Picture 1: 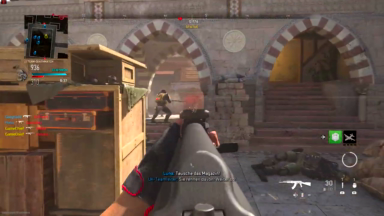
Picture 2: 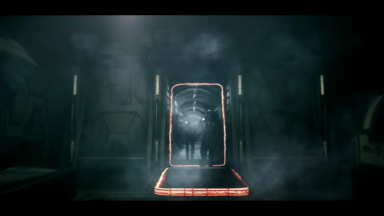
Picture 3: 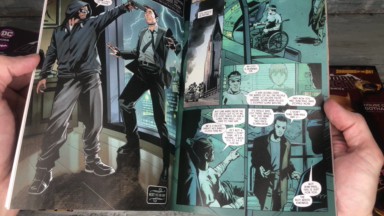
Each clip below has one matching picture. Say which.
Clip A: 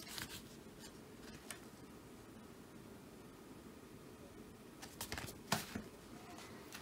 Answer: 3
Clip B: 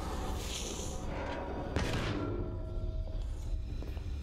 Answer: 2